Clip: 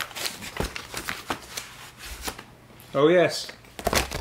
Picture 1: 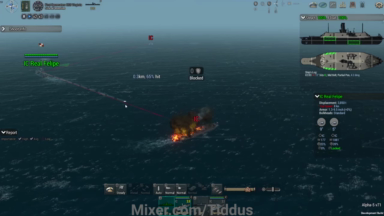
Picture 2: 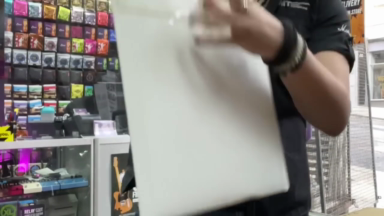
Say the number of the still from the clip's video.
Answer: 2